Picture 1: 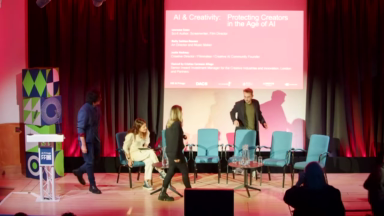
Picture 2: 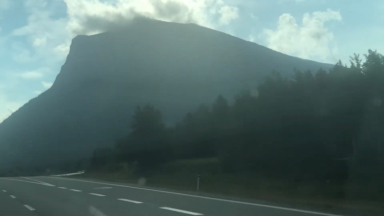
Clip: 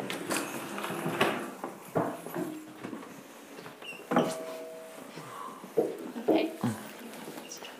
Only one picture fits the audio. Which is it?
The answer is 1